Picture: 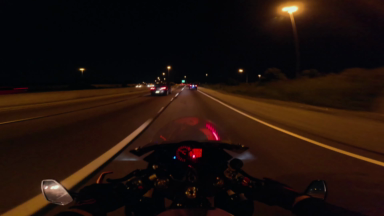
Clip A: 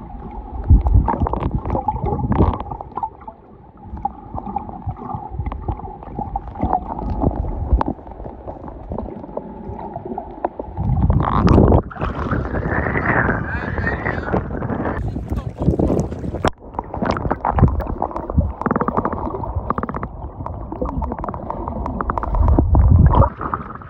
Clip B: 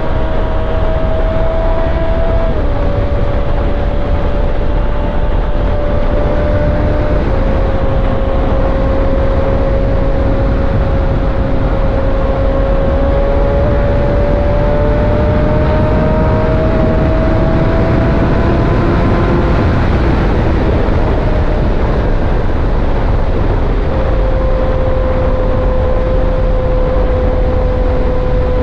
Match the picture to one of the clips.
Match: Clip B